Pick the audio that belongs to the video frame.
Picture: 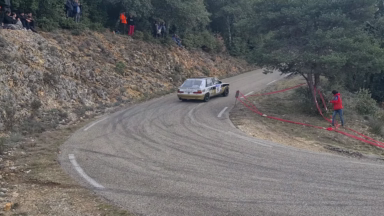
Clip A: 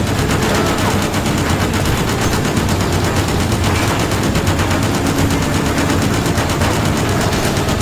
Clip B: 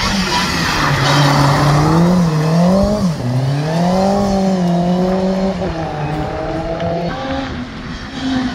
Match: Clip B